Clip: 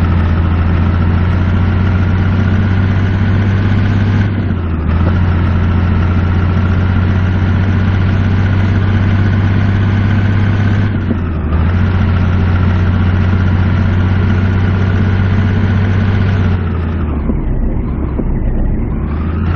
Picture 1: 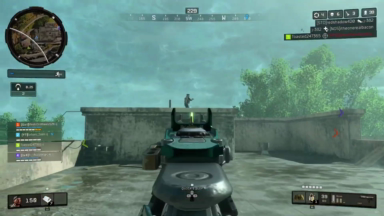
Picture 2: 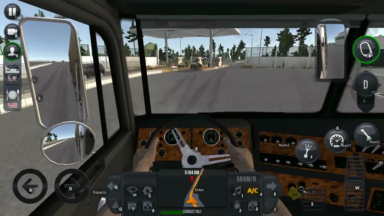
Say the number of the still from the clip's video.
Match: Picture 2